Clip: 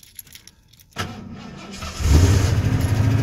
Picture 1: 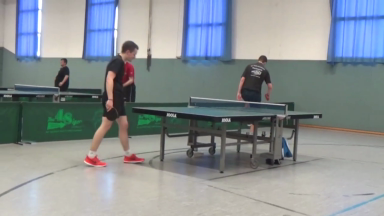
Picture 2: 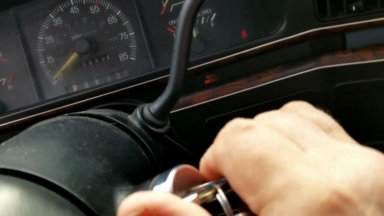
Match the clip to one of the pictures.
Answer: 2